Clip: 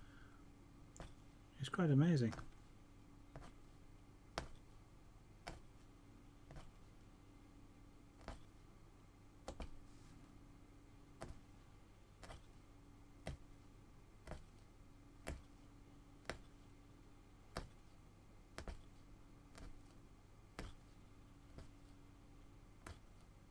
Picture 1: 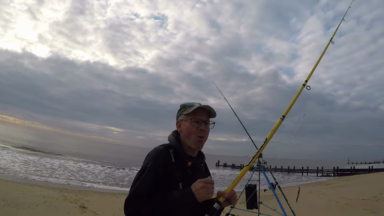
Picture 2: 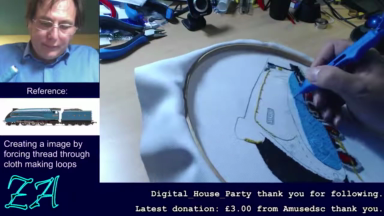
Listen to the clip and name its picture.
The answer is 2